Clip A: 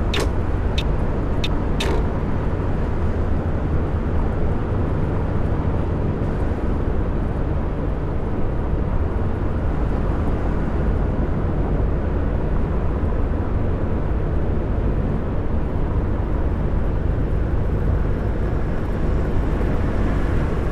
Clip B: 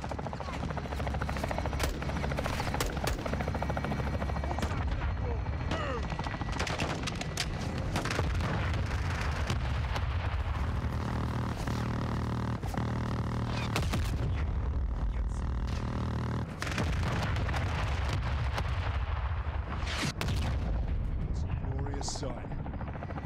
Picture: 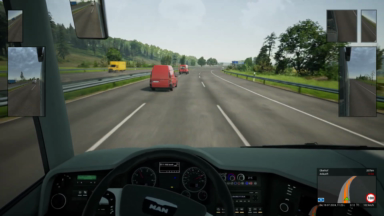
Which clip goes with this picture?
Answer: A